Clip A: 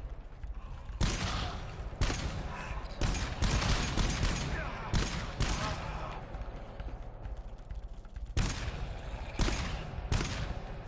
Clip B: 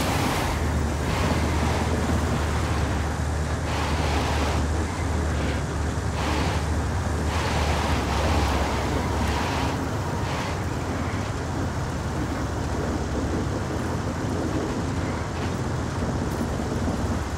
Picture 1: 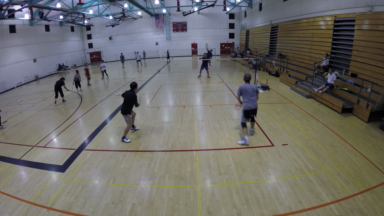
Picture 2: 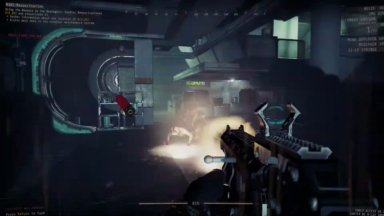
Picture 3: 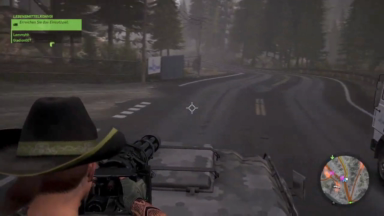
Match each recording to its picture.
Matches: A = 2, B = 3